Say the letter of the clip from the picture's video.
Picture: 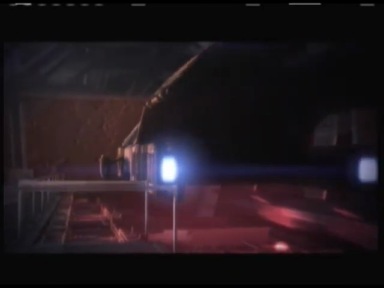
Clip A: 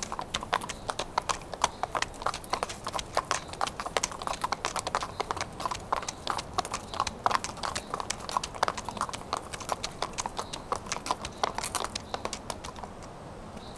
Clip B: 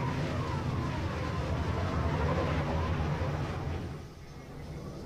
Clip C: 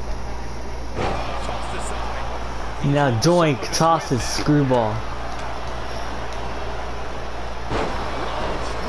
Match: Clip B